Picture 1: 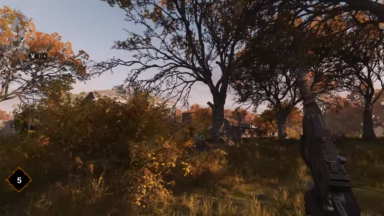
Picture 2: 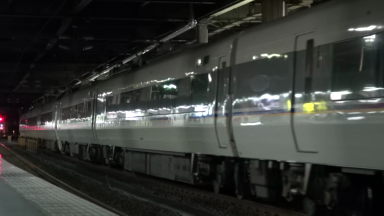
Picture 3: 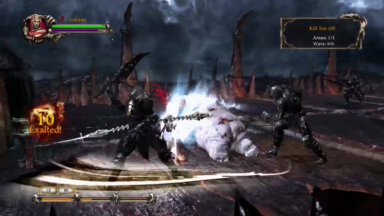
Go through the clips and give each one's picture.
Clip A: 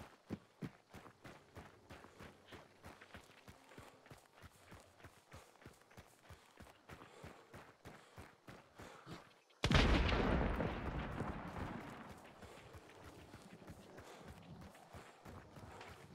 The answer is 1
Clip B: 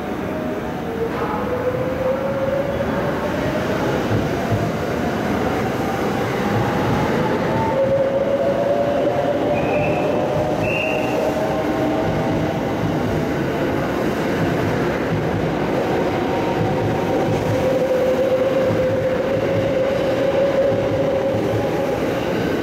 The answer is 2